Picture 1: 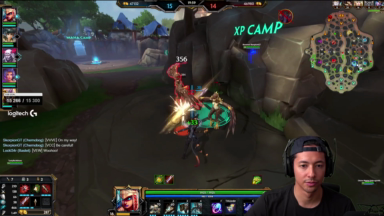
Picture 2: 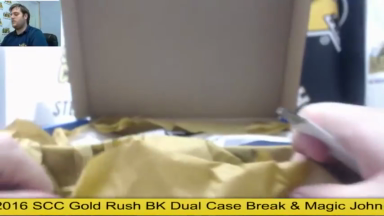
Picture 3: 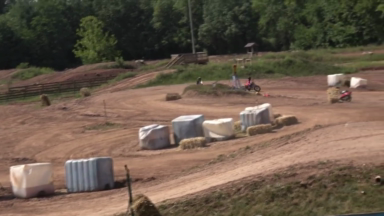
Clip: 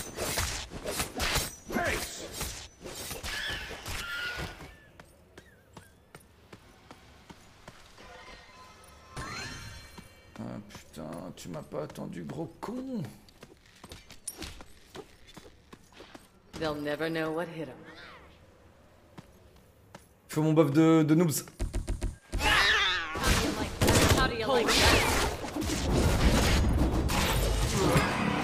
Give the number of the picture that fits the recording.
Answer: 1